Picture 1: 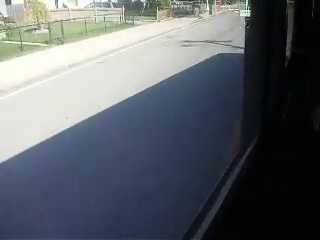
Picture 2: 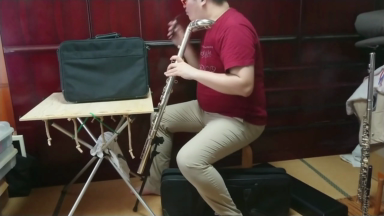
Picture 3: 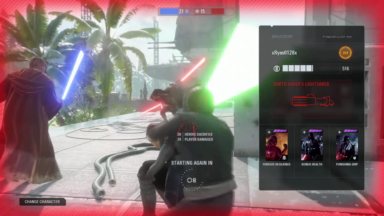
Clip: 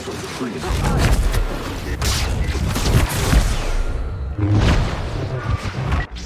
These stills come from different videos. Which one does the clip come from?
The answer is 3